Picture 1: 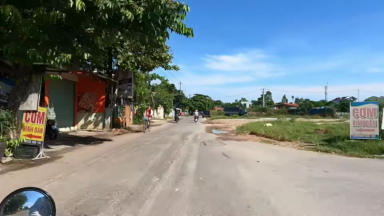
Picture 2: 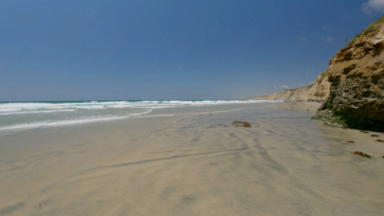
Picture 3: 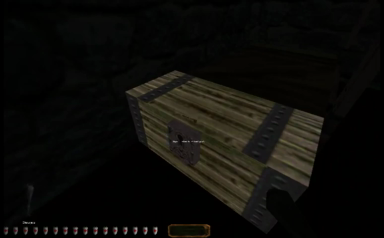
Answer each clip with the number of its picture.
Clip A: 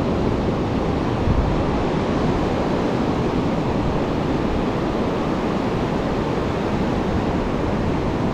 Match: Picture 2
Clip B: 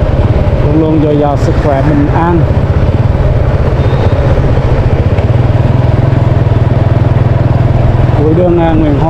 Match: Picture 1